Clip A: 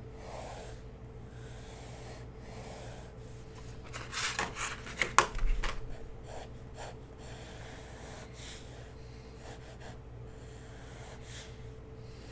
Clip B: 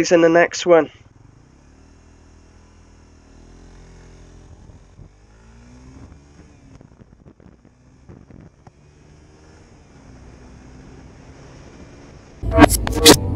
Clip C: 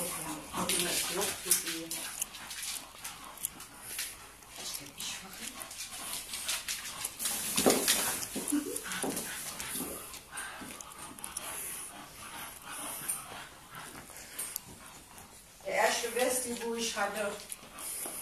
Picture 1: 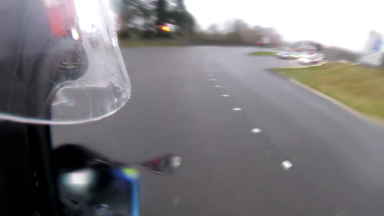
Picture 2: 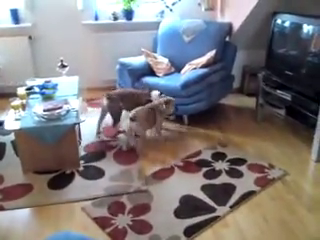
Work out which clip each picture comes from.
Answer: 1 B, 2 C